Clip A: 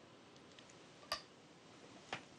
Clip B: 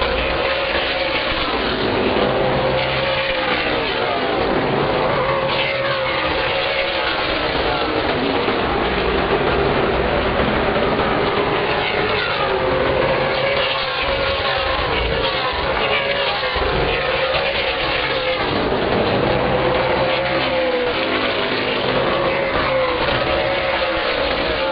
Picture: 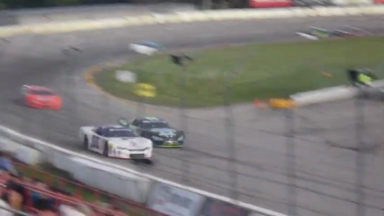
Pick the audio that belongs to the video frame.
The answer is B